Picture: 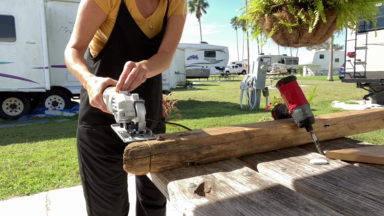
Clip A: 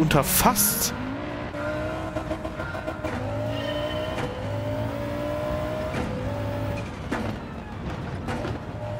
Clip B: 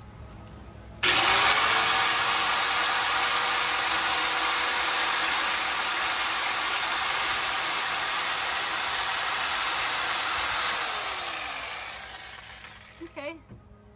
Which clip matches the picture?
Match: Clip B